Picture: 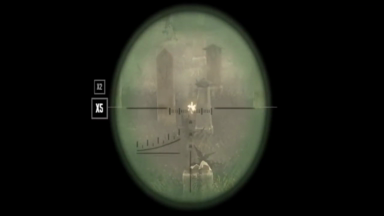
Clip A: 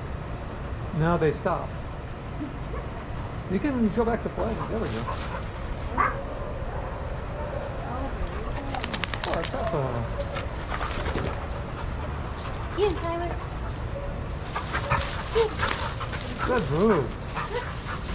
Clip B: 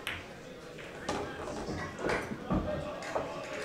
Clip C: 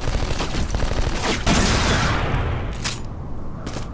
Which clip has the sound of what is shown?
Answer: C